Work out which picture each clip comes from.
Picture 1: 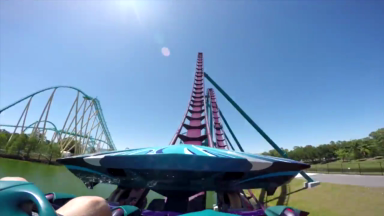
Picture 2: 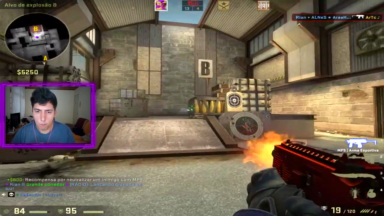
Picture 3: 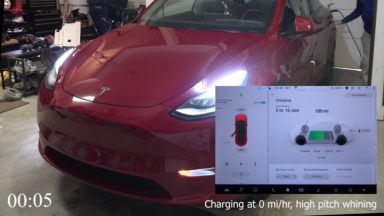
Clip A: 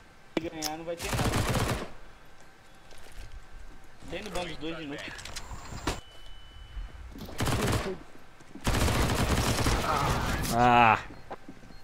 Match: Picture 2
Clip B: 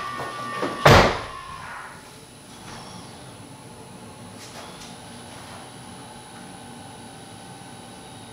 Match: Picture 3